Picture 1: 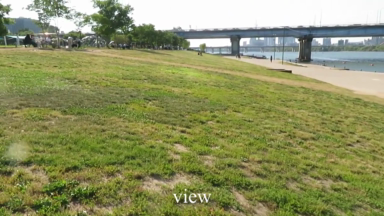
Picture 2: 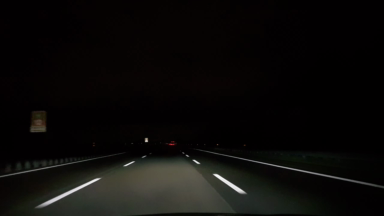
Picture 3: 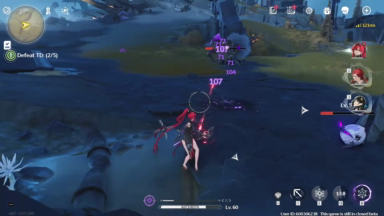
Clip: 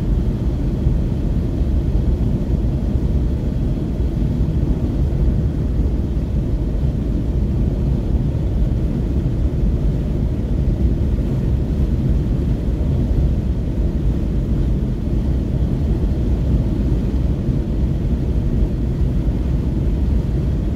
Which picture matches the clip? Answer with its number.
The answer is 2